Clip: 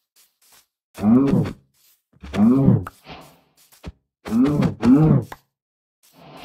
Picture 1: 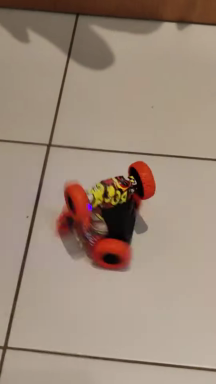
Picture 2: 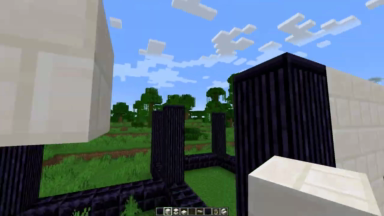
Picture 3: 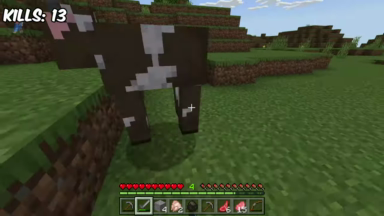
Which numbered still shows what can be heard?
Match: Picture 3